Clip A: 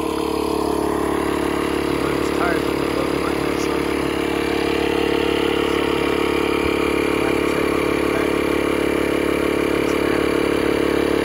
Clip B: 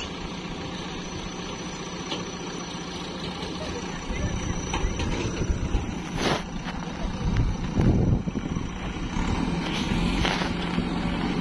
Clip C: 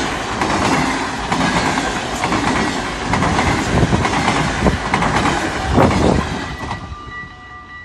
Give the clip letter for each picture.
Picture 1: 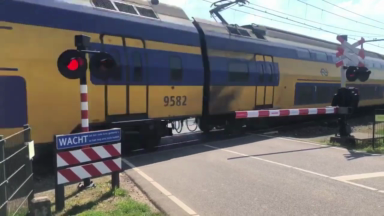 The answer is C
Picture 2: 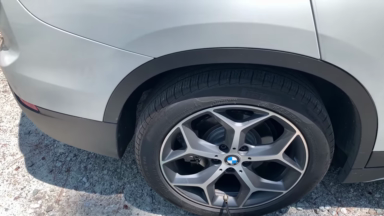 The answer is A